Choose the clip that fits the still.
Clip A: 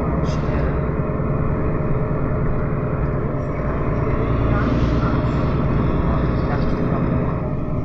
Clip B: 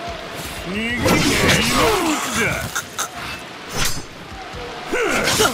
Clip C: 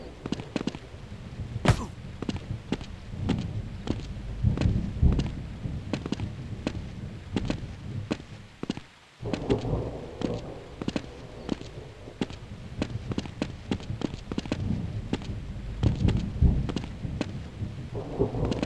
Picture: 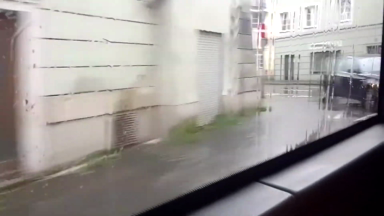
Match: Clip A